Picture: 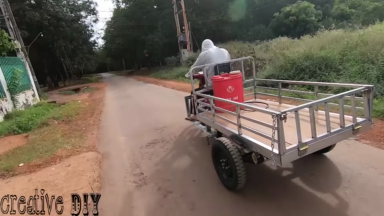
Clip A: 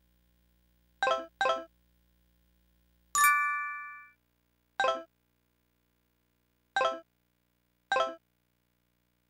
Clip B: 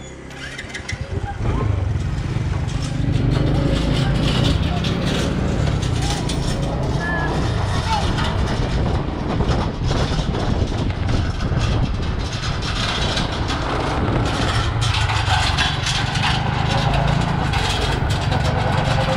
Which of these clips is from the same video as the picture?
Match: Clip B